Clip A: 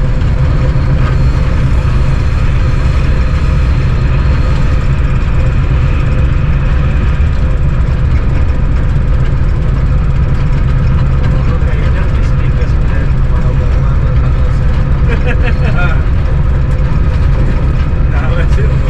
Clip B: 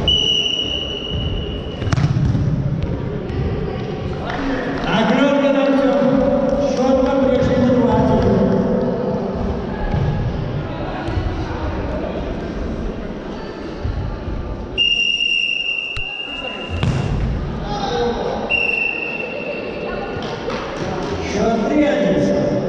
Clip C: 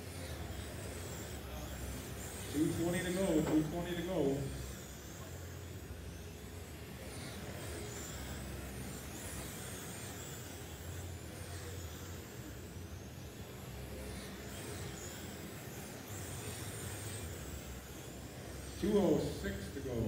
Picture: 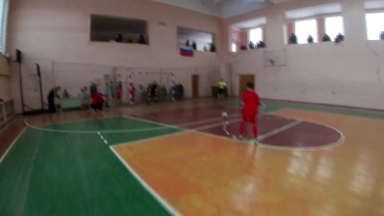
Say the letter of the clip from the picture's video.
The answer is B